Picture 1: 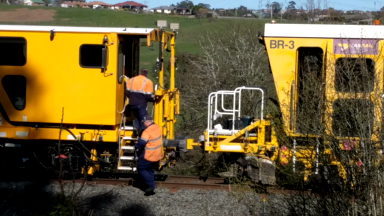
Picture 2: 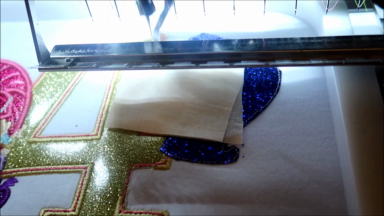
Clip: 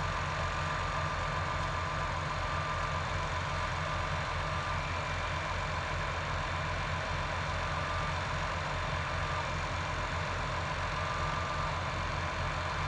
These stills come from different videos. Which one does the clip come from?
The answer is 1